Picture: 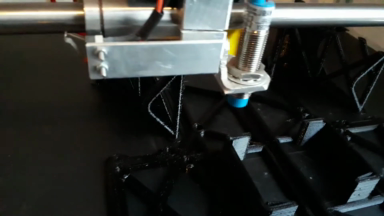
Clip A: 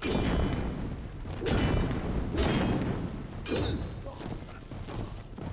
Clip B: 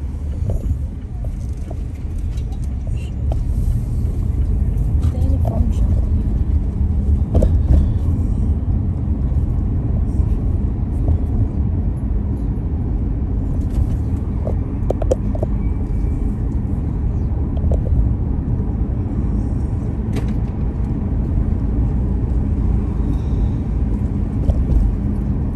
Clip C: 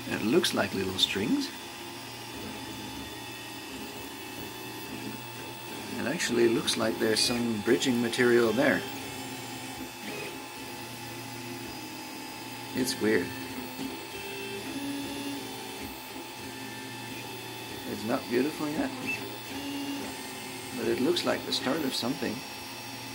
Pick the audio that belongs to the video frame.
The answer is C